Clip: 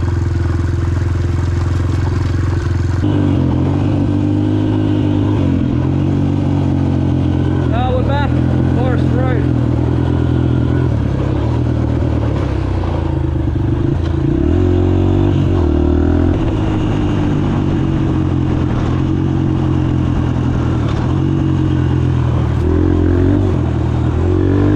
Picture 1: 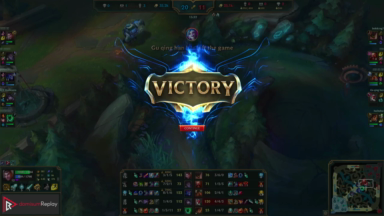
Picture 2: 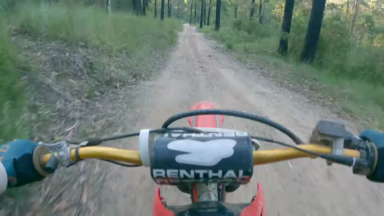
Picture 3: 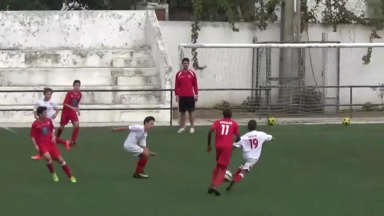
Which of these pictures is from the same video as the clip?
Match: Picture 2